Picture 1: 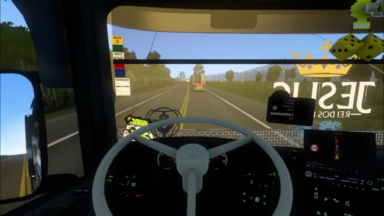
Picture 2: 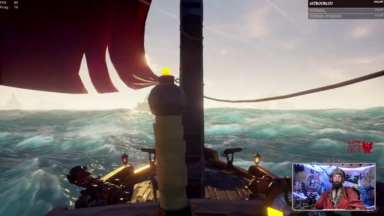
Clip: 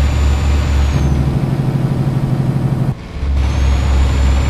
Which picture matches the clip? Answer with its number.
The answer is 1